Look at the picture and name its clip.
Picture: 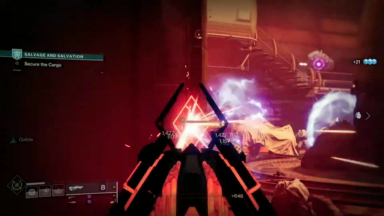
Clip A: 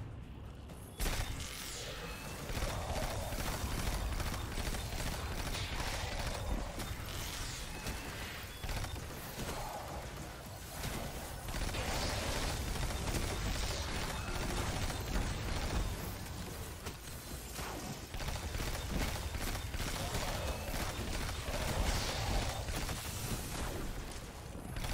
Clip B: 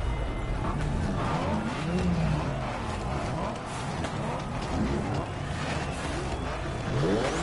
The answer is A